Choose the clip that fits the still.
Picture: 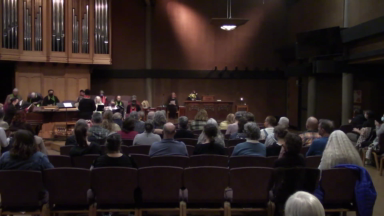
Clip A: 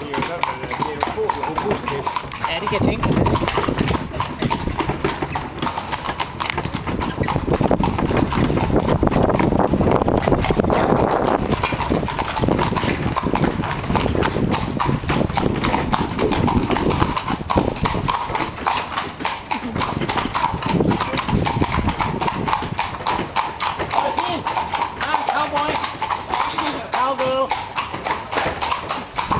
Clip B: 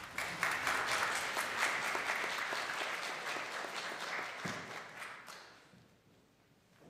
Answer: B